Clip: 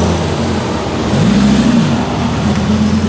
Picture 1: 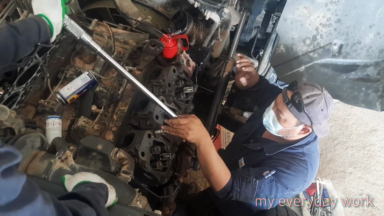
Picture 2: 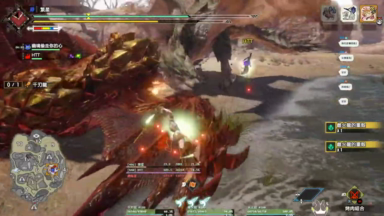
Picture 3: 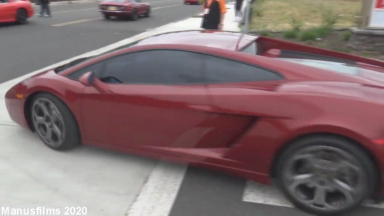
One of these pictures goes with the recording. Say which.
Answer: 3